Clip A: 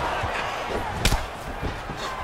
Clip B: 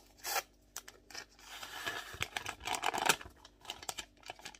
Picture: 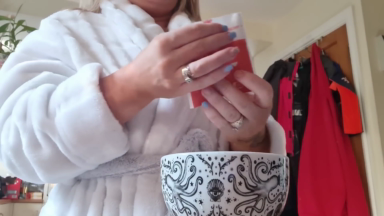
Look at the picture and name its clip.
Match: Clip B